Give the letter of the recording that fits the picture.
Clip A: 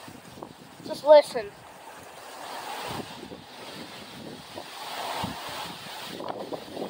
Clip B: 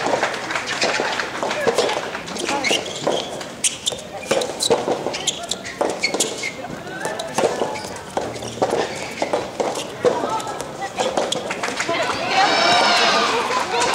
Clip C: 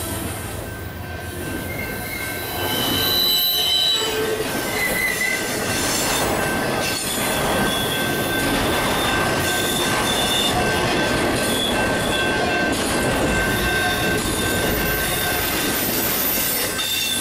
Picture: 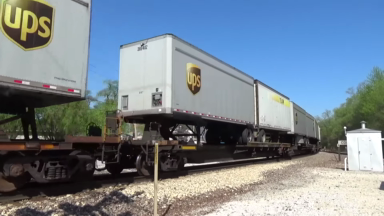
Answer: C